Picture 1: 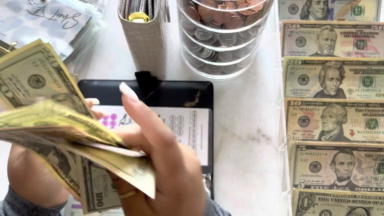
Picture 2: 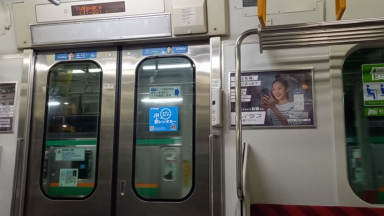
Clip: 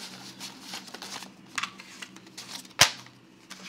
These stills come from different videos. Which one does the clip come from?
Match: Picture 1